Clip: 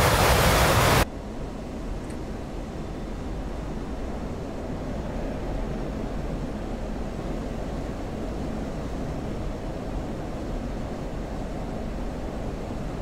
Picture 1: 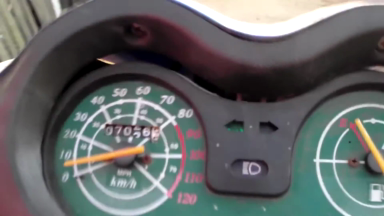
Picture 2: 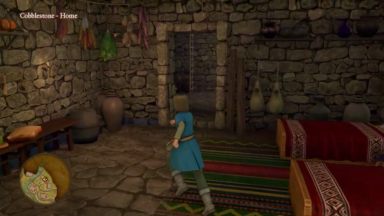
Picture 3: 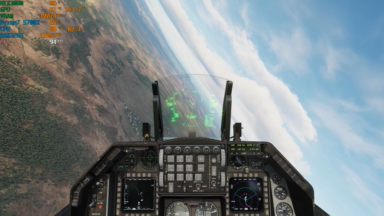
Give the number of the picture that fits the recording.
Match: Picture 3